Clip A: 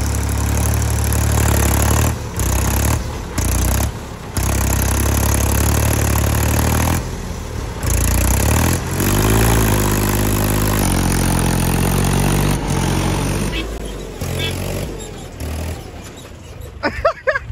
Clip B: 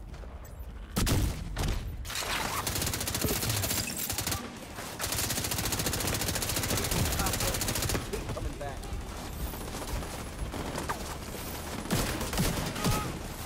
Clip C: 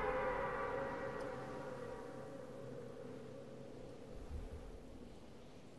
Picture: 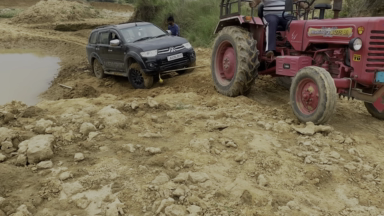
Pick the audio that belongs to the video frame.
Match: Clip A